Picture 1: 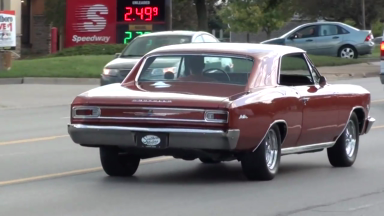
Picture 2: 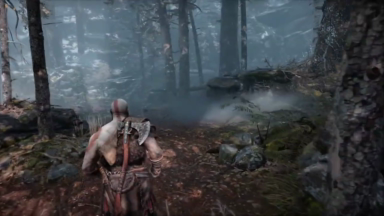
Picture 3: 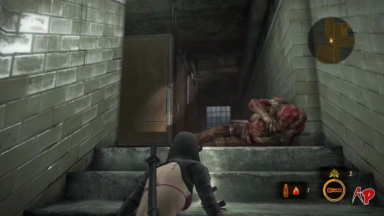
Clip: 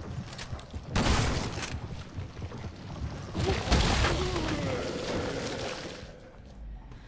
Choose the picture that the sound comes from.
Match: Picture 3